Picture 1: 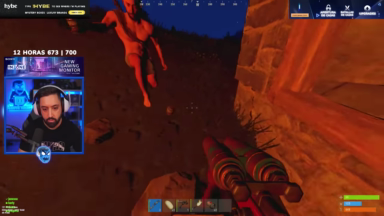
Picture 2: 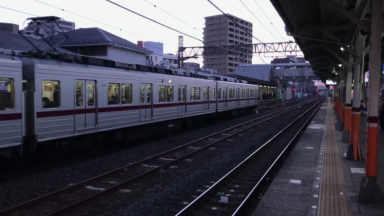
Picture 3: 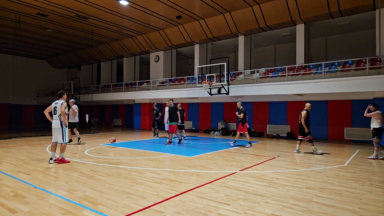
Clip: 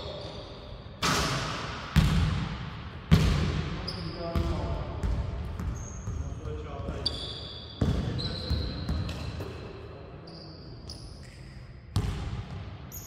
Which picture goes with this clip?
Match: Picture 3